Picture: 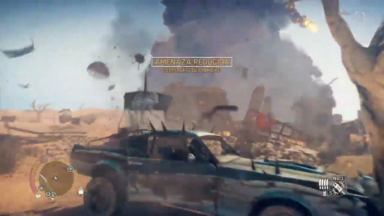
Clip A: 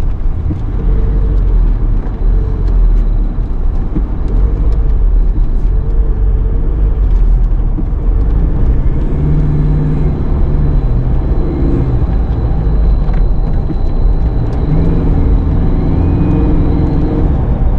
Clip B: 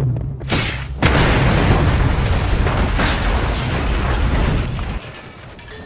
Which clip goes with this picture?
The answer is B